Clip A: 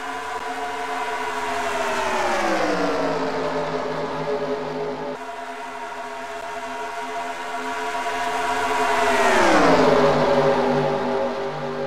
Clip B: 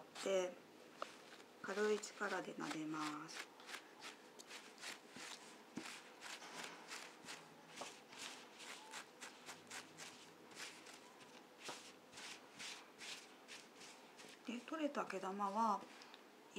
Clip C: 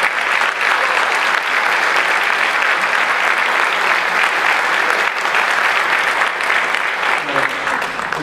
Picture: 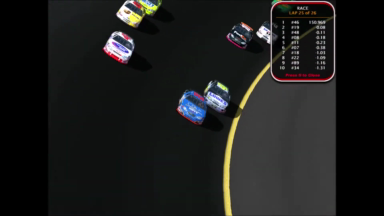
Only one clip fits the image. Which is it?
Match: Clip A